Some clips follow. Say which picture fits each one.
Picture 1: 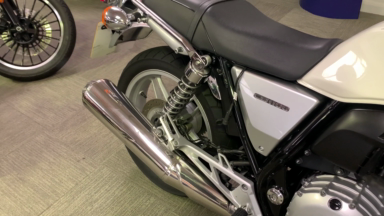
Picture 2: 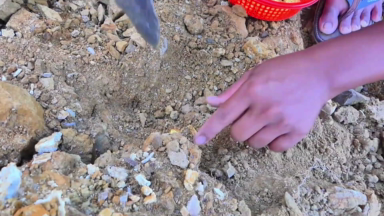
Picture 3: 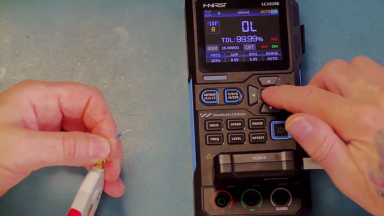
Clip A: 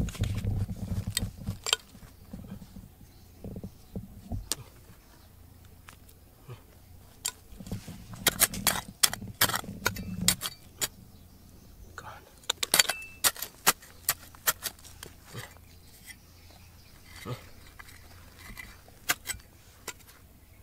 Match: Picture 2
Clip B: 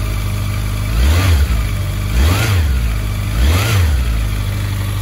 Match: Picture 1